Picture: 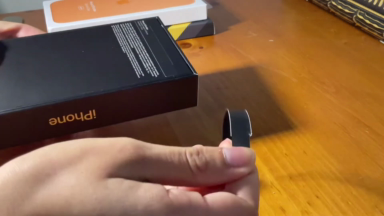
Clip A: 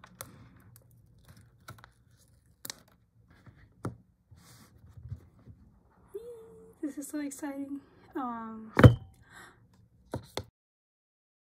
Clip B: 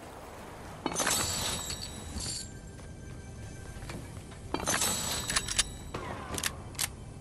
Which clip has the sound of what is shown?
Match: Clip A